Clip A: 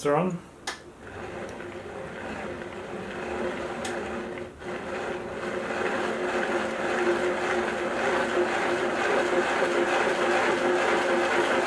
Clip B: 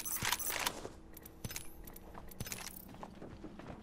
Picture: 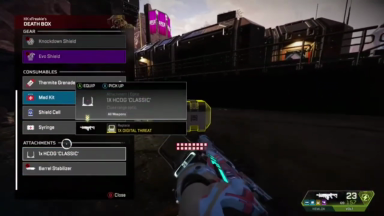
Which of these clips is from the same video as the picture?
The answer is B